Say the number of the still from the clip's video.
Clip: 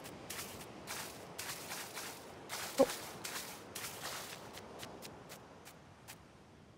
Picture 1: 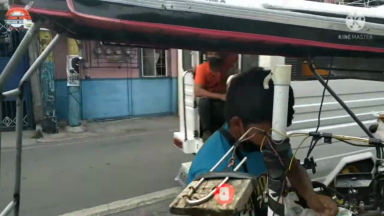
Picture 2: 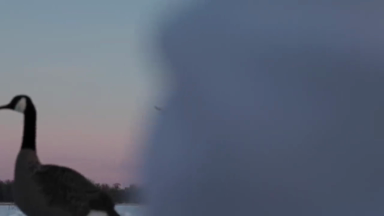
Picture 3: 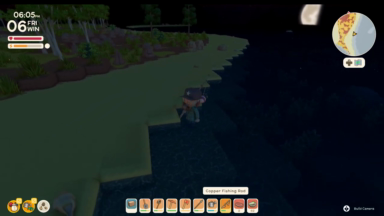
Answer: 3